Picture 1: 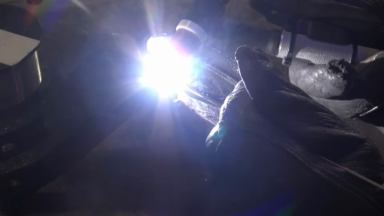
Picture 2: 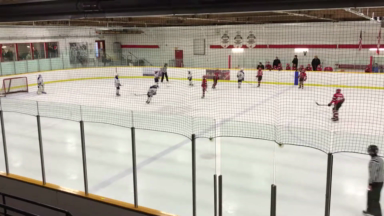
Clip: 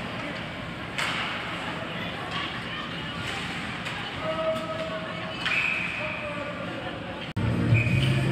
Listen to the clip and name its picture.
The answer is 2